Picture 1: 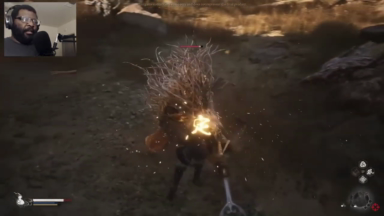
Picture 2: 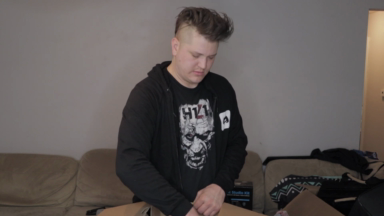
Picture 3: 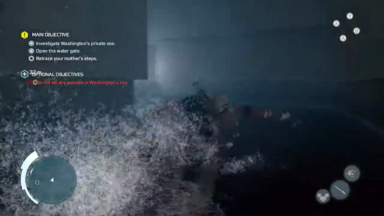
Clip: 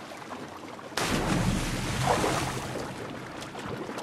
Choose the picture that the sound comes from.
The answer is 3